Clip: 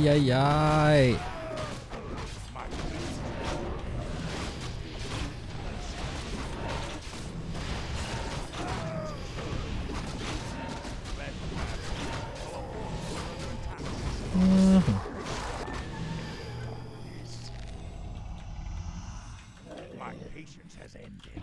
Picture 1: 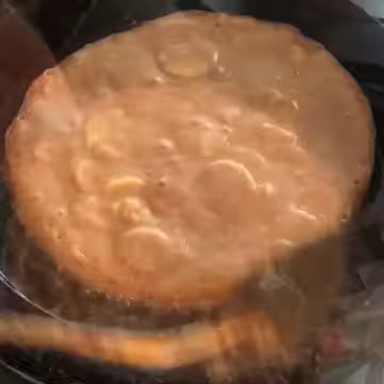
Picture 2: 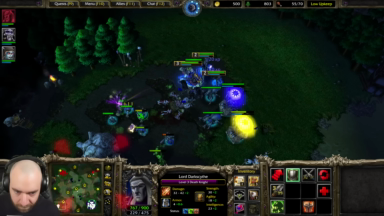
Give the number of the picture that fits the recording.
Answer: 2